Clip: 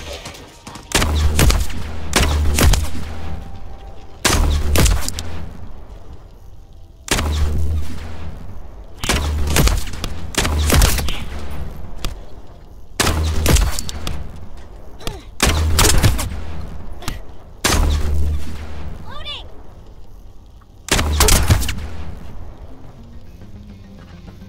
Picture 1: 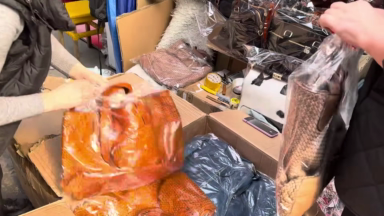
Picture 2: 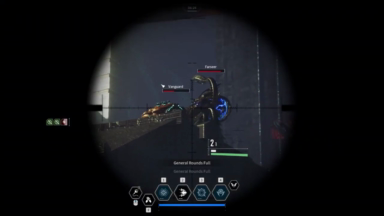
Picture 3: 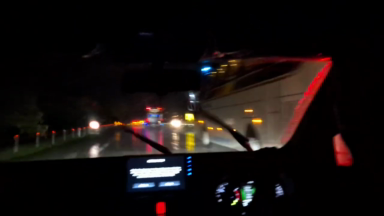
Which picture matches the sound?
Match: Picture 2